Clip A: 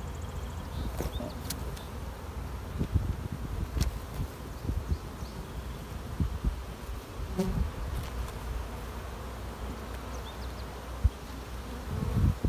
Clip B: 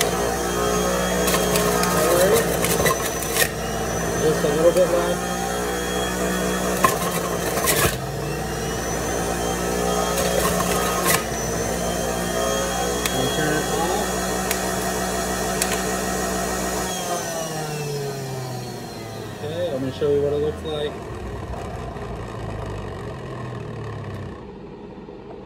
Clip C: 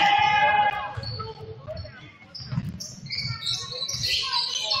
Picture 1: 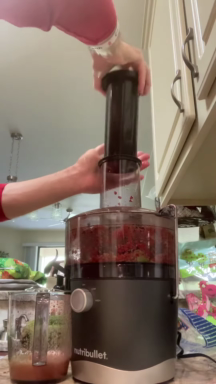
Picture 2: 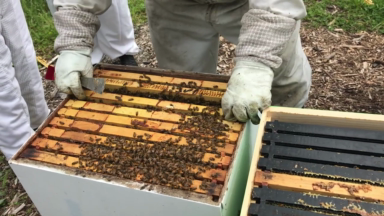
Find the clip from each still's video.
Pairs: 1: B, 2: A